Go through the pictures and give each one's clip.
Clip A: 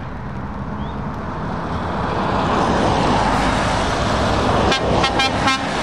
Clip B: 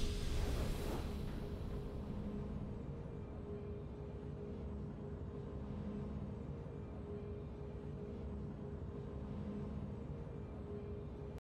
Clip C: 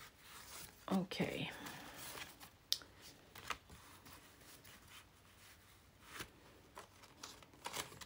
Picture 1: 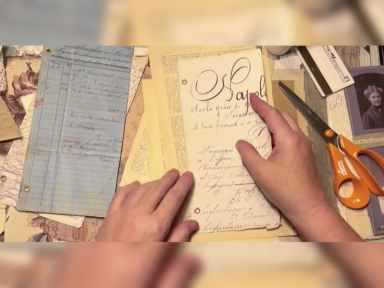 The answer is C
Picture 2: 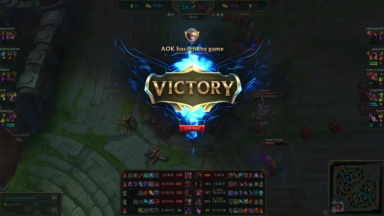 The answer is B